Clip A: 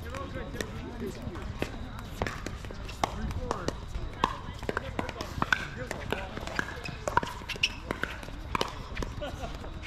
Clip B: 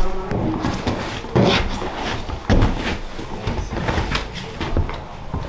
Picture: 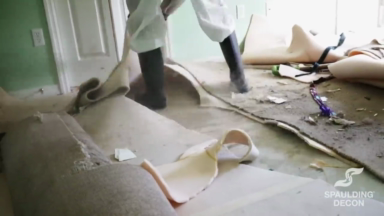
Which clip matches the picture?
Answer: B